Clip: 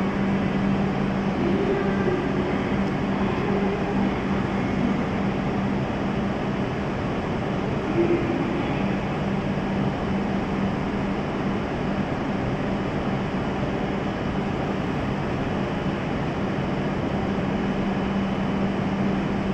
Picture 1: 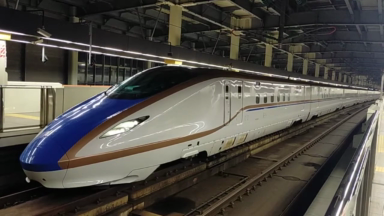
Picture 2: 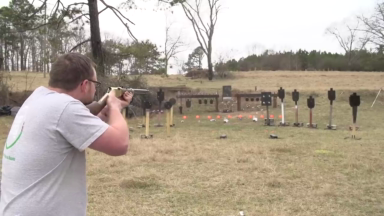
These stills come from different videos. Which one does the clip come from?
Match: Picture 1